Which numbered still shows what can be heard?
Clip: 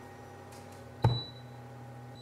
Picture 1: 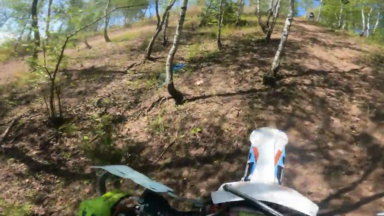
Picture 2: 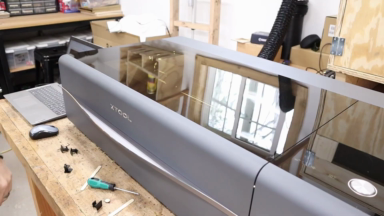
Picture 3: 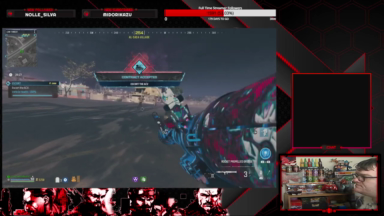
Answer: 2